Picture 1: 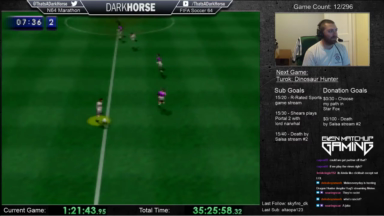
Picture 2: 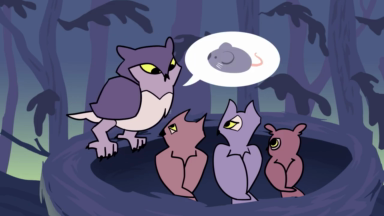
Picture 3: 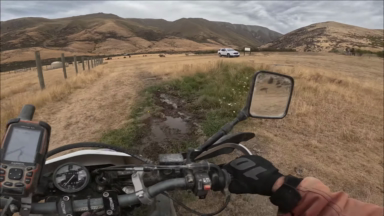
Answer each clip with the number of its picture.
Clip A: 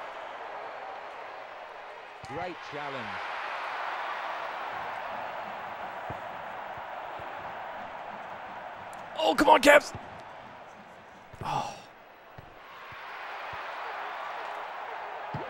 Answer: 1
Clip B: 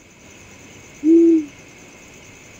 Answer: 2